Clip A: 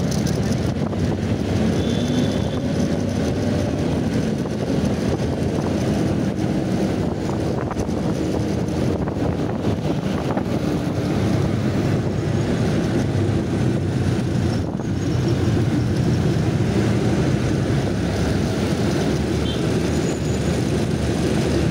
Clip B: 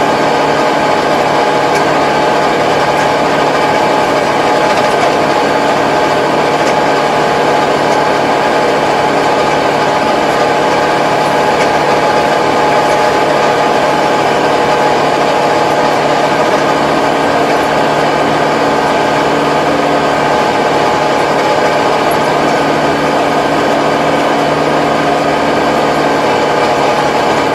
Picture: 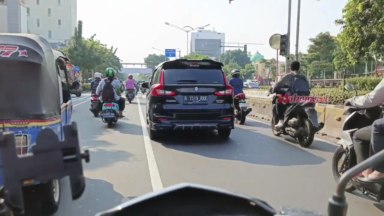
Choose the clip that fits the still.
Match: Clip A